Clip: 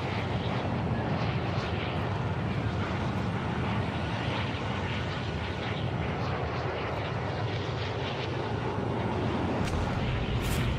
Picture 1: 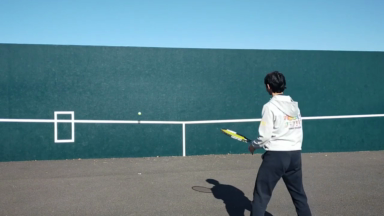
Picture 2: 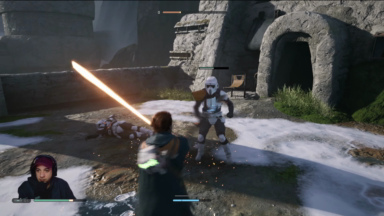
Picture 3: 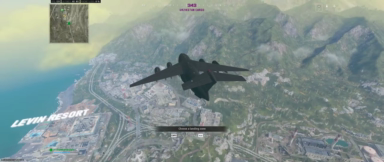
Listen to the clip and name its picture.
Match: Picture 3